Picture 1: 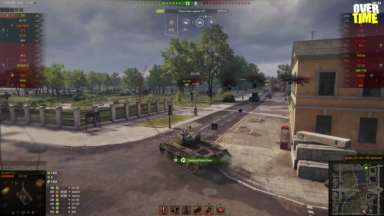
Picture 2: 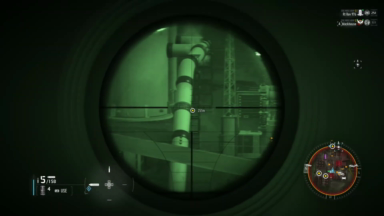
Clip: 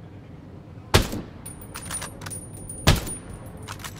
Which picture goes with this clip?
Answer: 2